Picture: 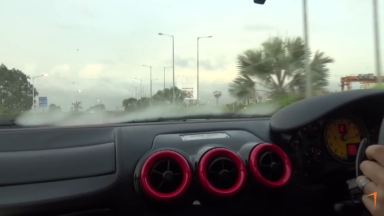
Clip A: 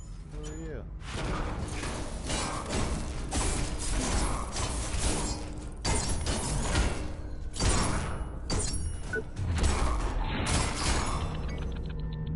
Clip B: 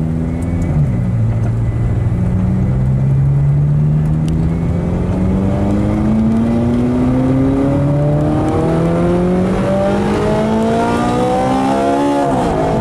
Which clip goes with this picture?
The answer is B